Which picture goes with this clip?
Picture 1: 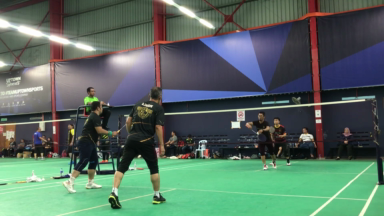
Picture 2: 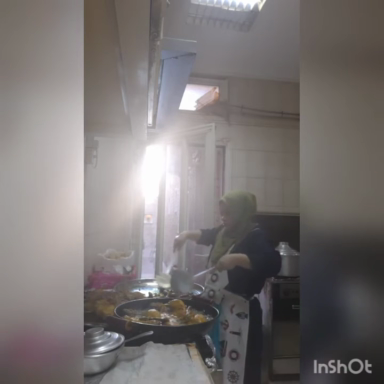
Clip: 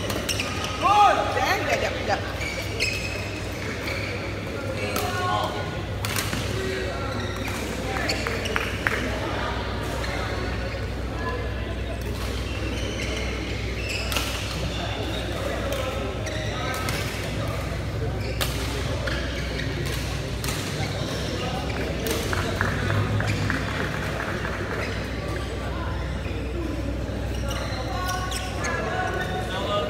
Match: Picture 1